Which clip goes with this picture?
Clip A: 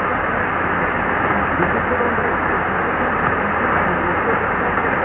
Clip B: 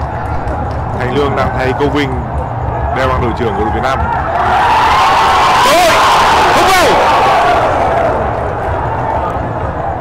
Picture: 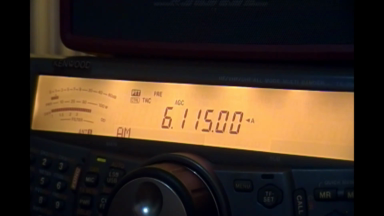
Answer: A